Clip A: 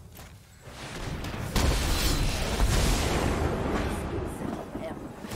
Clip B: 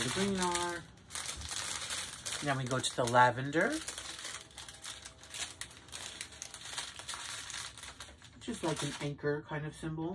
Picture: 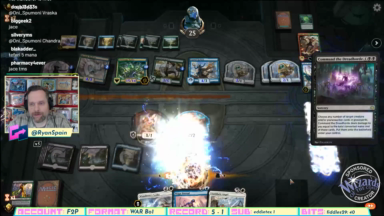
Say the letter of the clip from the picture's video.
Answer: A